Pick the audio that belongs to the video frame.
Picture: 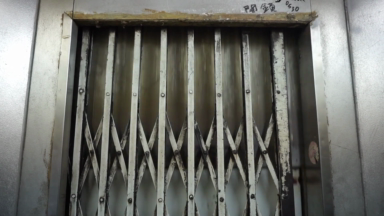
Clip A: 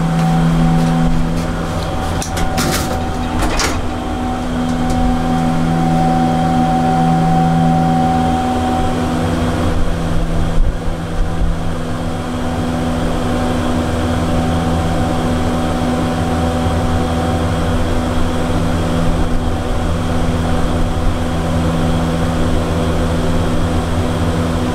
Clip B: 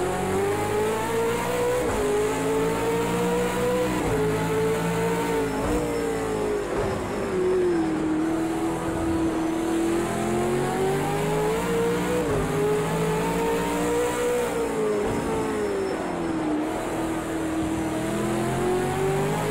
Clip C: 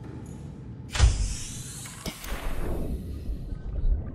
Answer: A